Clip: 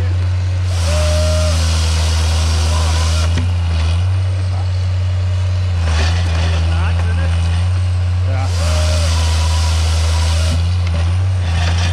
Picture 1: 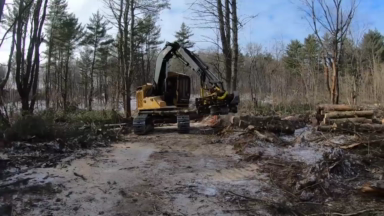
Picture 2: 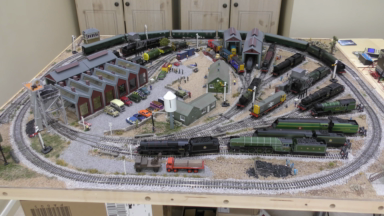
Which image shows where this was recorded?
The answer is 1